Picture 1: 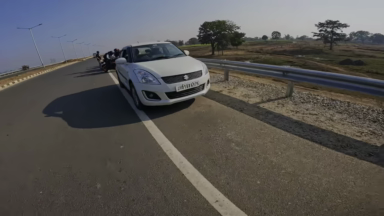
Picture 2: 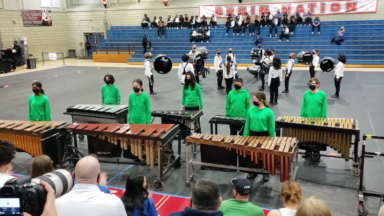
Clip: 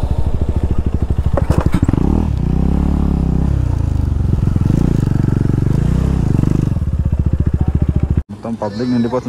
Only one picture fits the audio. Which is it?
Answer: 1